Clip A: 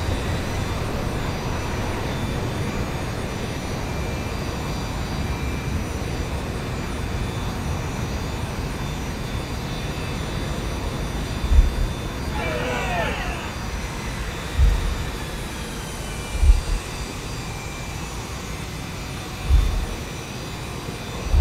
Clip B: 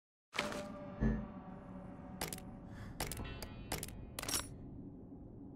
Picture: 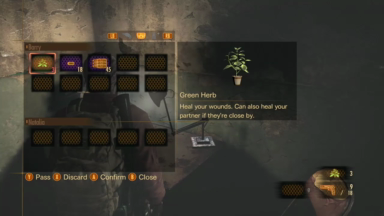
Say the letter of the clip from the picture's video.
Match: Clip B